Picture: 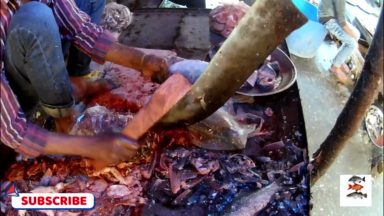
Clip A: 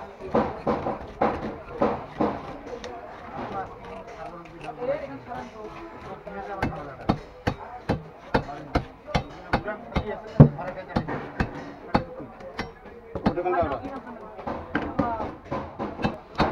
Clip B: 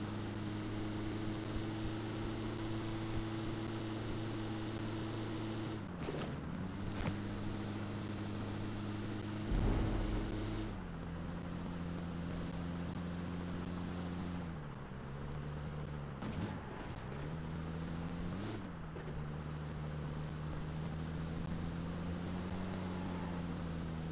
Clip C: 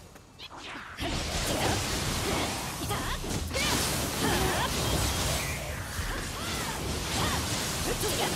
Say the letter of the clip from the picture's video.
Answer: A